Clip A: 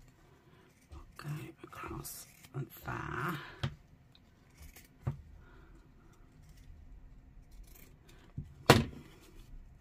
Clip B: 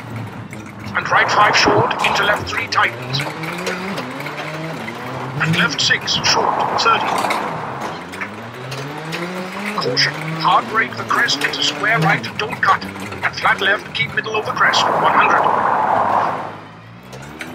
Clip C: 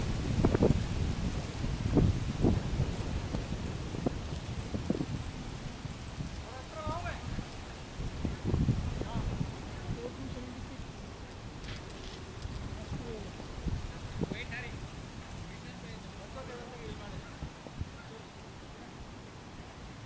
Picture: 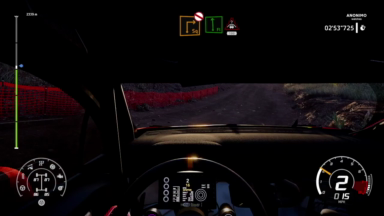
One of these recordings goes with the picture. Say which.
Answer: B